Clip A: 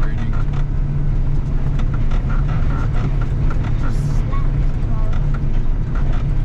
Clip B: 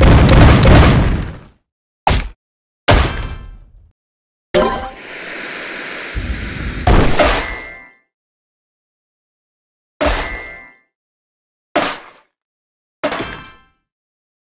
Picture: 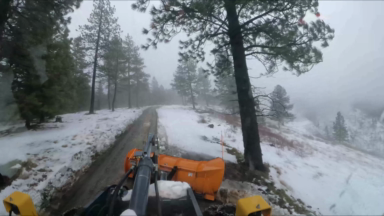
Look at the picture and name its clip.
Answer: A